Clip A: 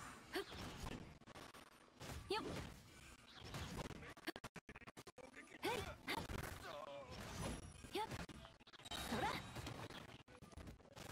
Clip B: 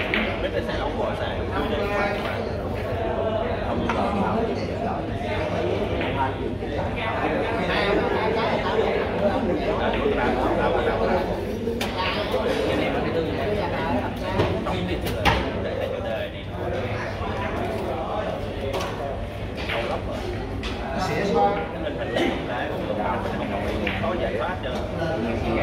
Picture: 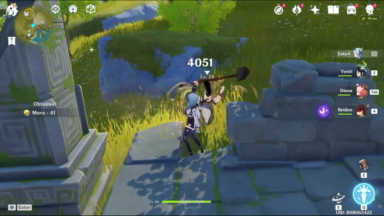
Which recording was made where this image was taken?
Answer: A